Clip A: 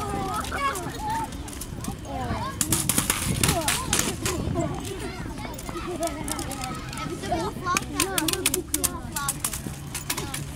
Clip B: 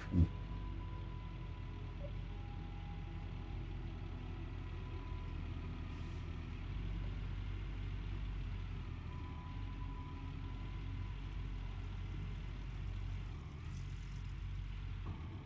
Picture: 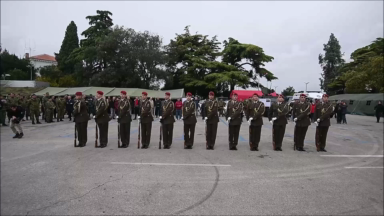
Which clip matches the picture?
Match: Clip A